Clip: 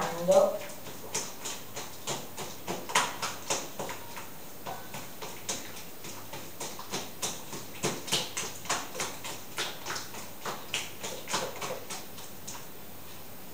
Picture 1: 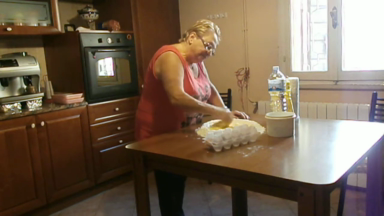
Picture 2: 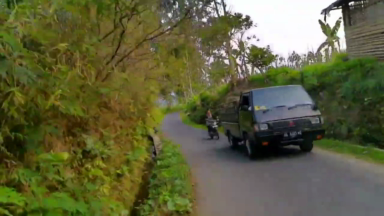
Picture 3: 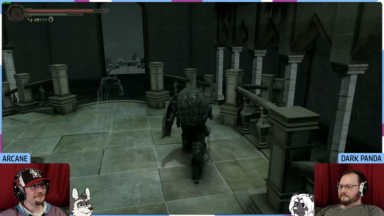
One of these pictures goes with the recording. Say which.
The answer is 1